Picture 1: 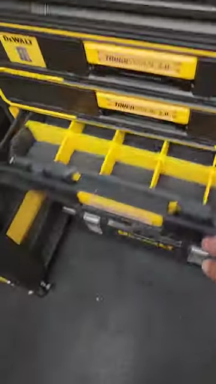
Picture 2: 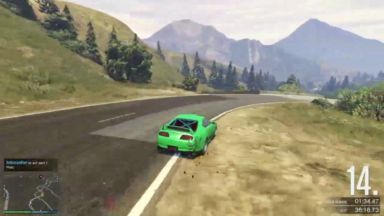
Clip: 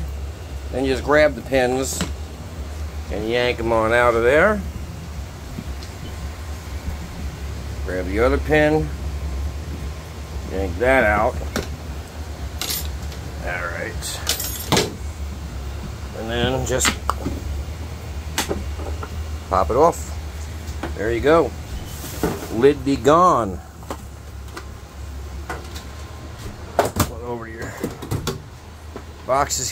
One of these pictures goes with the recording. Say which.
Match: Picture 1